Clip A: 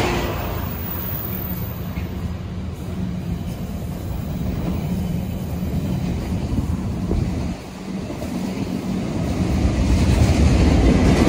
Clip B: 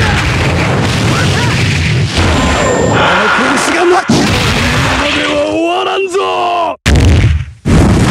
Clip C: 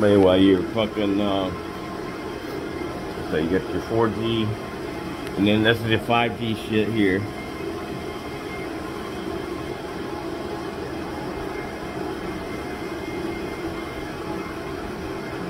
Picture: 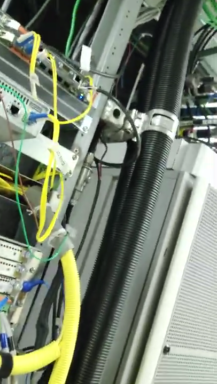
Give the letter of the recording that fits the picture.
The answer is C